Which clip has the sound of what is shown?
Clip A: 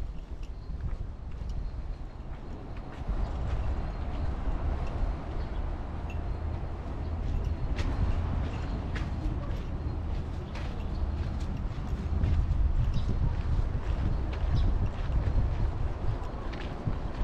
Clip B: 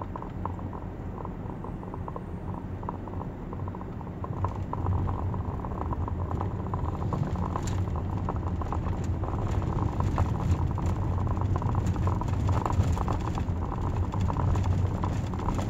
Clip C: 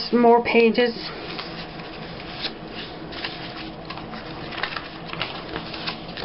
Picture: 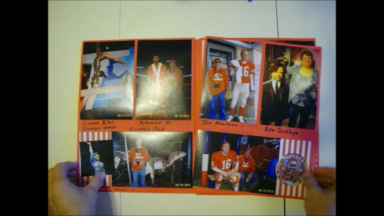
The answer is C